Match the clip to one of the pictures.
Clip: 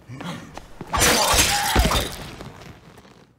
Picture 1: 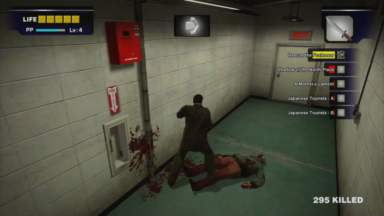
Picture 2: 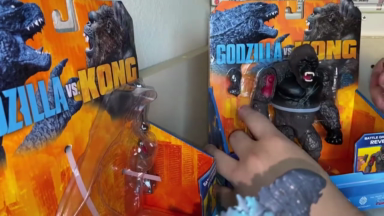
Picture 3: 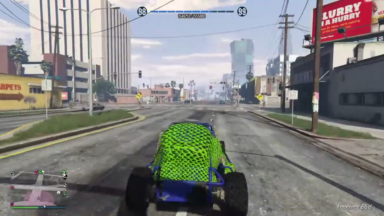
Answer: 1